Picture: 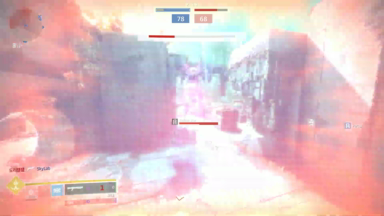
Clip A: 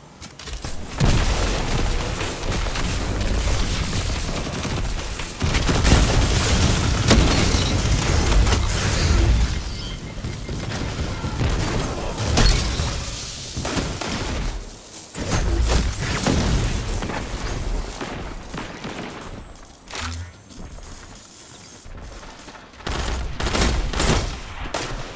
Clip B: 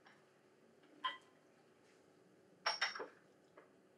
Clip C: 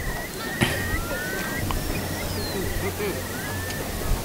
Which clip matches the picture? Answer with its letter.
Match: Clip A